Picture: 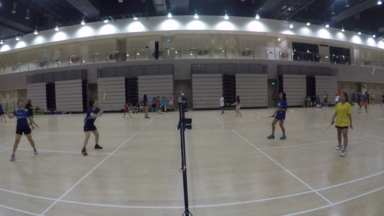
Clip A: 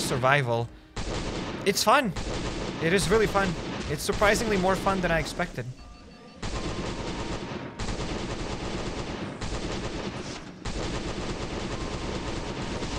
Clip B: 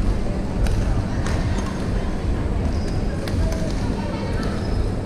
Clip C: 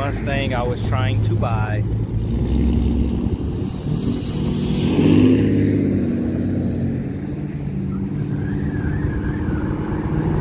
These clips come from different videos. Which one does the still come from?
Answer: B